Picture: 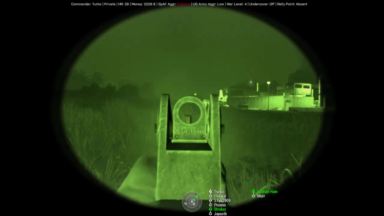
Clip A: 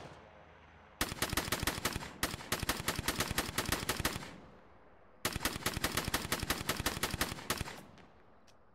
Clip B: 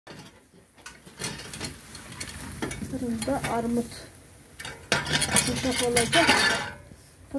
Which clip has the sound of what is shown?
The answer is A